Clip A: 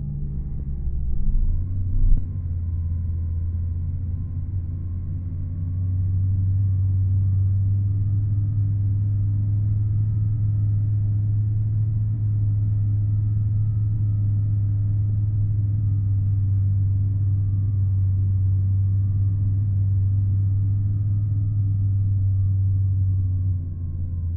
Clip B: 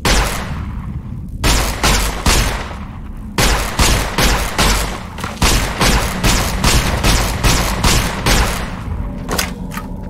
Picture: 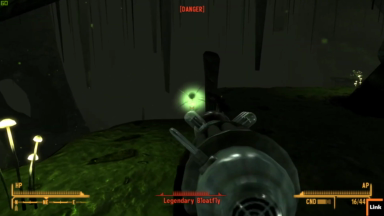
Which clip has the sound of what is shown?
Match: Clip B